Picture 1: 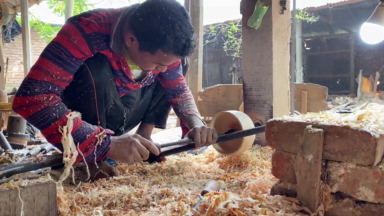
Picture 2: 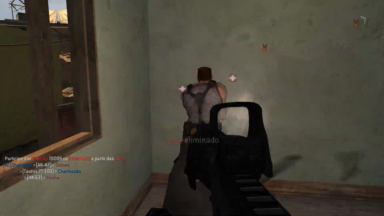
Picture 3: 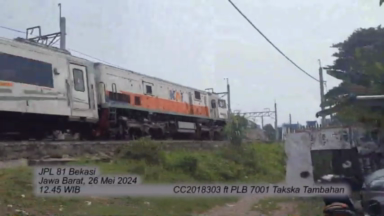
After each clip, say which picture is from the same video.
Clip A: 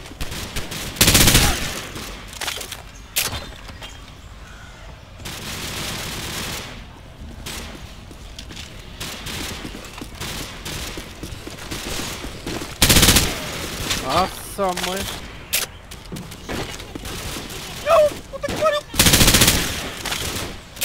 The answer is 2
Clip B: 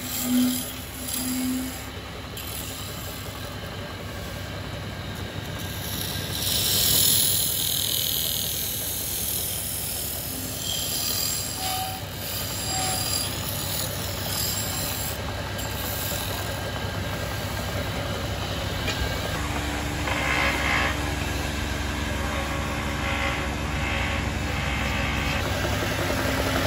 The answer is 1